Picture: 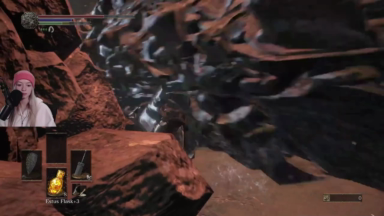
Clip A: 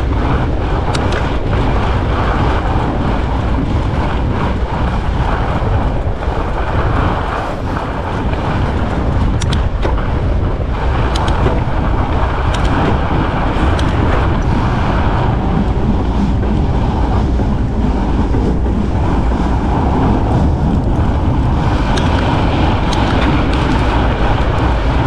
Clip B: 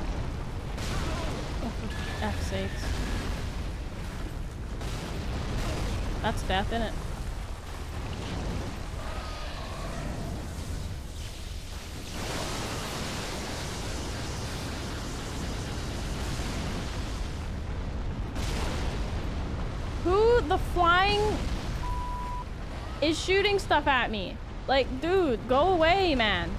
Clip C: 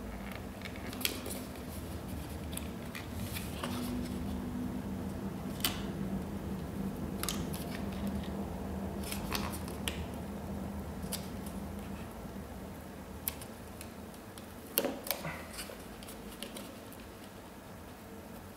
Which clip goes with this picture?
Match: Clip B